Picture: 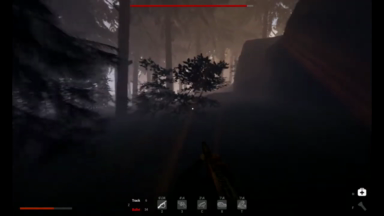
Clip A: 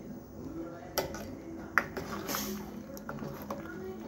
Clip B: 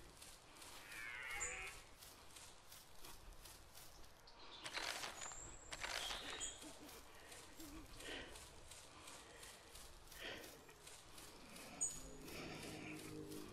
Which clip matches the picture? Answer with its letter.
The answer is B